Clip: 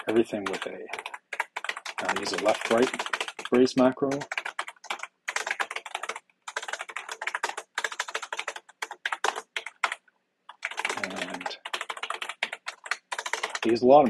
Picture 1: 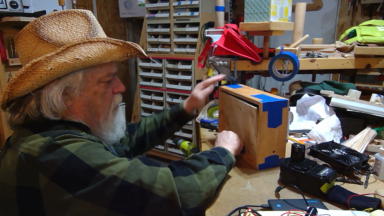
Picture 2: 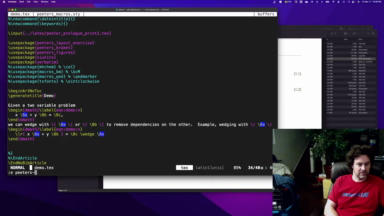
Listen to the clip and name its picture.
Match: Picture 2